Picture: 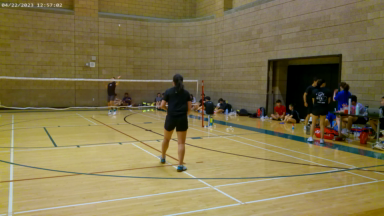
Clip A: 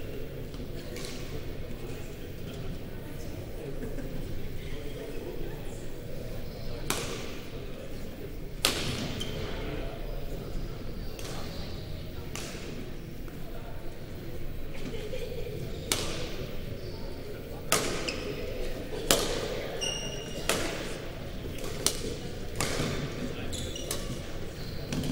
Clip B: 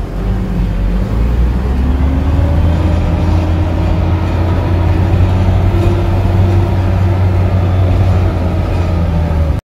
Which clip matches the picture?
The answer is A